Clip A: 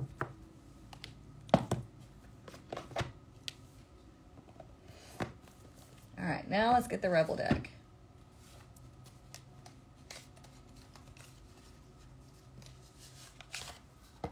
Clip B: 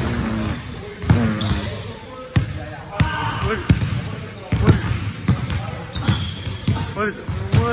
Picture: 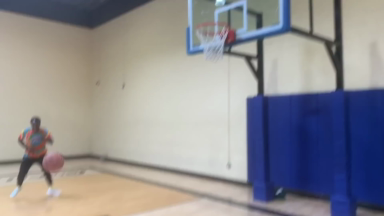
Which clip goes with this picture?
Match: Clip B